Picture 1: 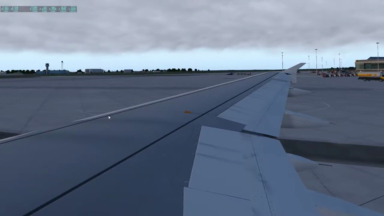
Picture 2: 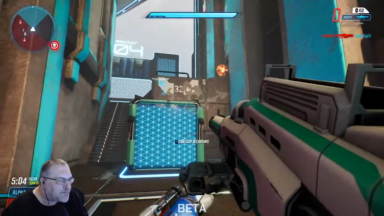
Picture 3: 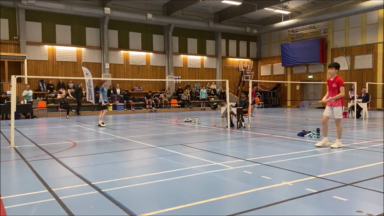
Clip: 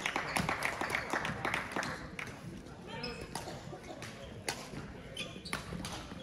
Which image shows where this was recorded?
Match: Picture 3